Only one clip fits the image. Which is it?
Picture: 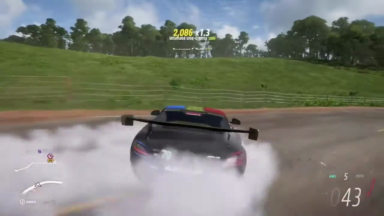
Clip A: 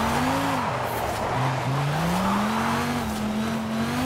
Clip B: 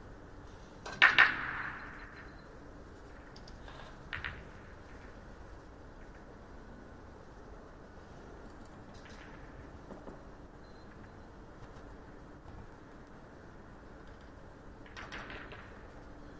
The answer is A